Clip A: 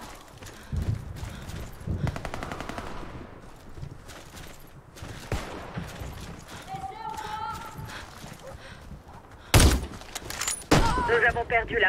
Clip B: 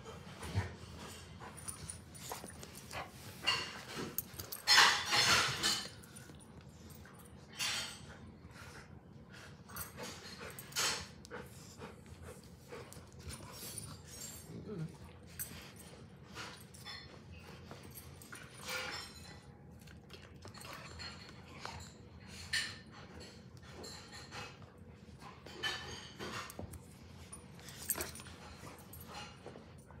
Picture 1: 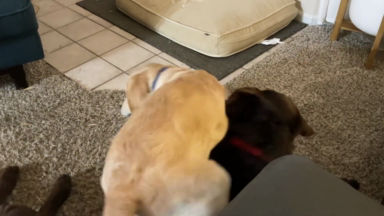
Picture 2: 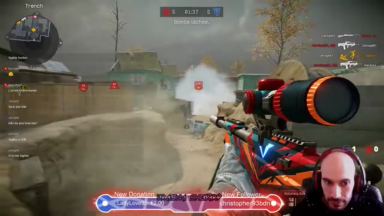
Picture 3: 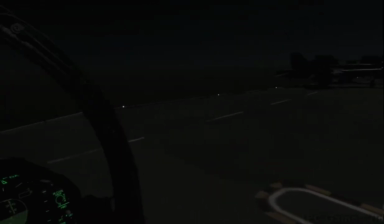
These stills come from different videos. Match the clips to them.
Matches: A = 2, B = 1